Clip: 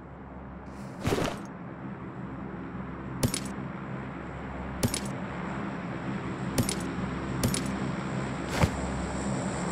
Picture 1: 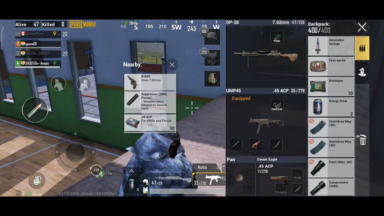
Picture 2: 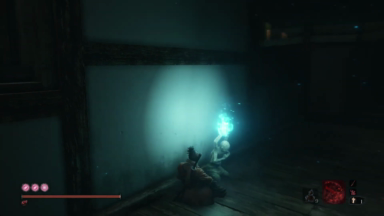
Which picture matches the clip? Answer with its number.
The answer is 1